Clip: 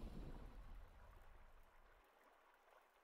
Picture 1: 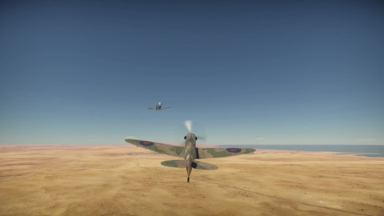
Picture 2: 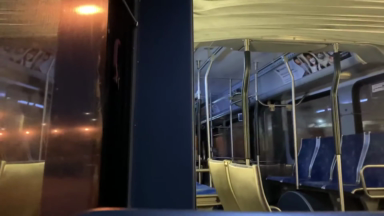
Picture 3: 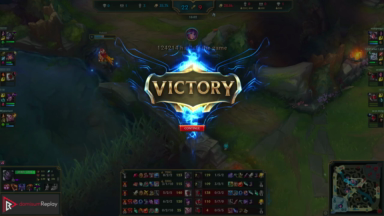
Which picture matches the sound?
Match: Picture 3